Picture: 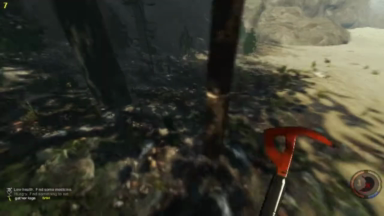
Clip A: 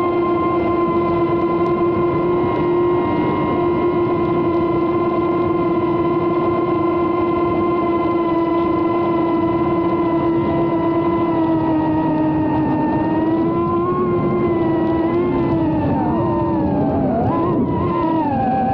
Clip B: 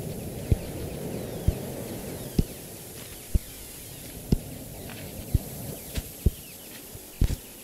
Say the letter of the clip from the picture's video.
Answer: B